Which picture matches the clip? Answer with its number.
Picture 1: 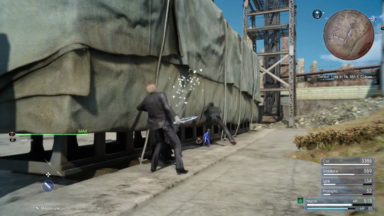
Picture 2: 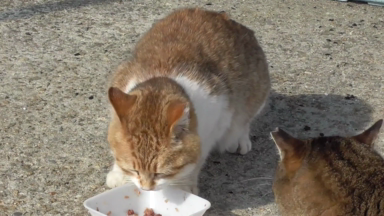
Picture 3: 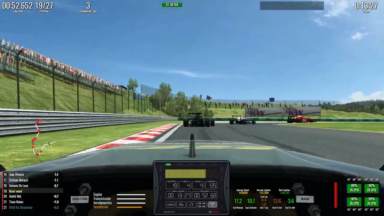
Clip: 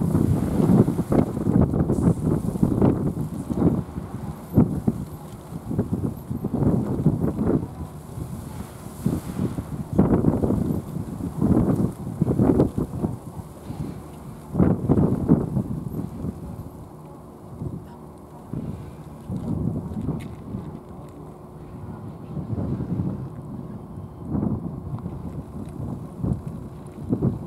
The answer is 2